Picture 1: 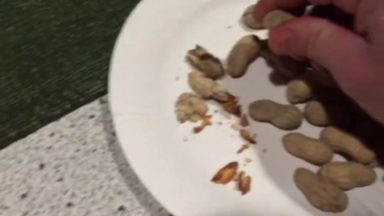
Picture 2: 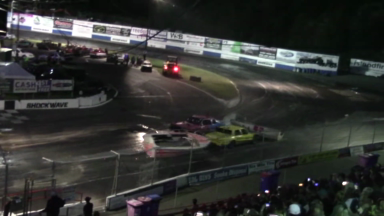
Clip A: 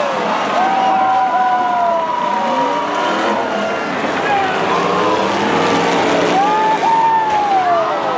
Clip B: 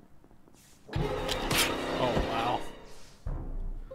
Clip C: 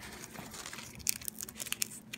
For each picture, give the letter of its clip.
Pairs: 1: C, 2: A